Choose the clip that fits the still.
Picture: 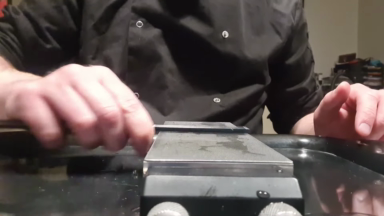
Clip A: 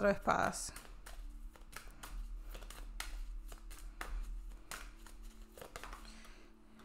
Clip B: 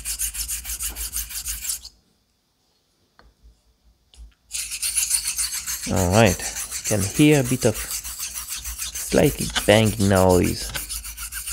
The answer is B